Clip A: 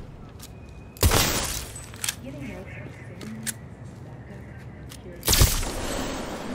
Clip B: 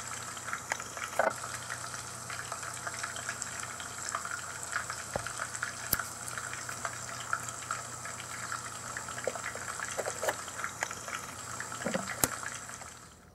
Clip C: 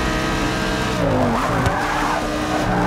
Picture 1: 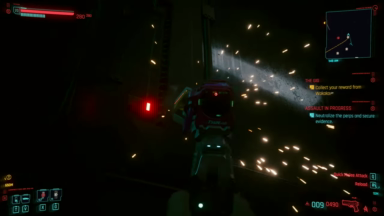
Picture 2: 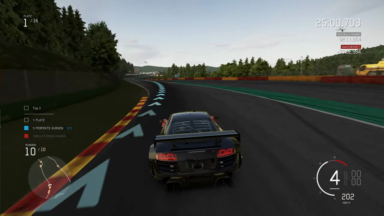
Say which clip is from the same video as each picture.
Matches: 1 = A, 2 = C